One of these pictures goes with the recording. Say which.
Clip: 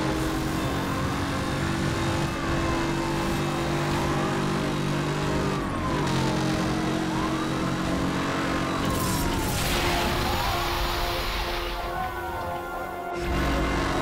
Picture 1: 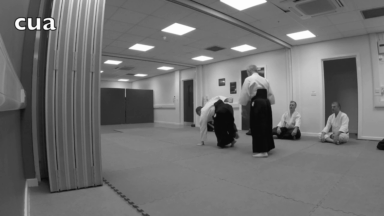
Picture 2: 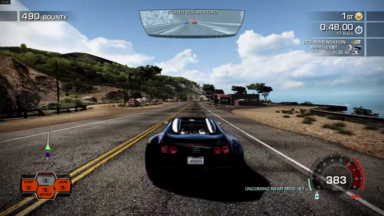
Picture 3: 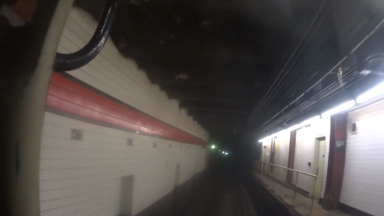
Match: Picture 2